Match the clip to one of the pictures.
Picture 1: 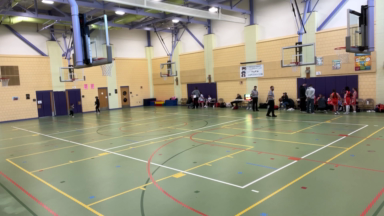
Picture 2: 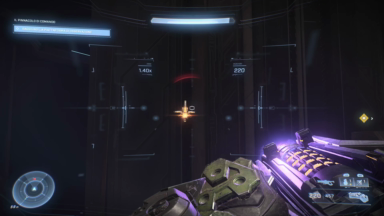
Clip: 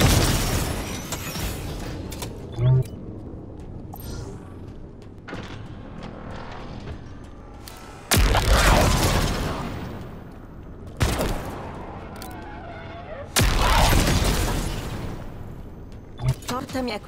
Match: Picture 2